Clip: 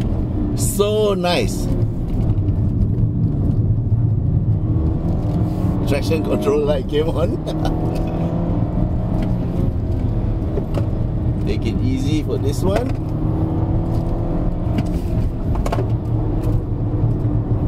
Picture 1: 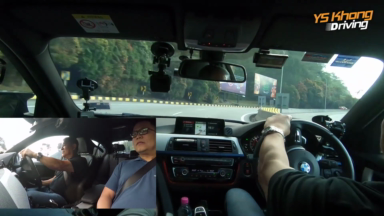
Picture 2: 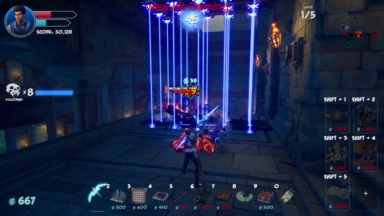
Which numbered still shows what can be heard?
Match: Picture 1